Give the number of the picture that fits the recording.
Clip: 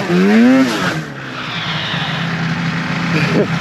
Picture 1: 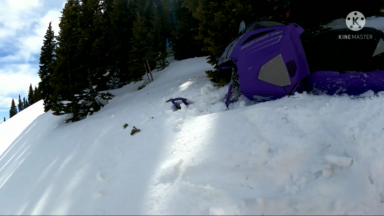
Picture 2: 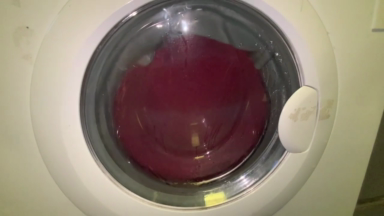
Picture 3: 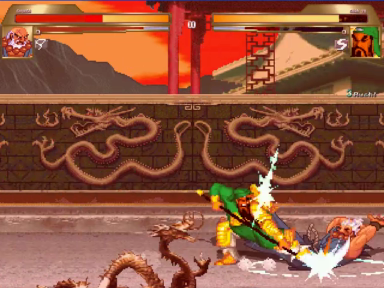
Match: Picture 1